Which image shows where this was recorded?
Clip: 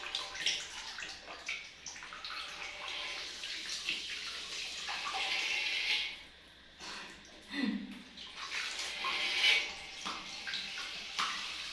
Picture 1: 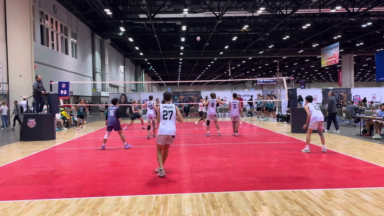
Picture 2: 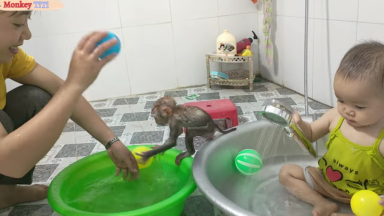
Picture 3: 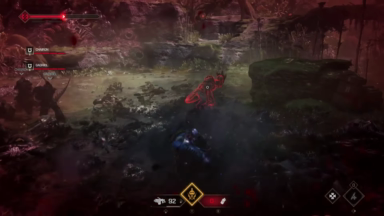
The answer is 2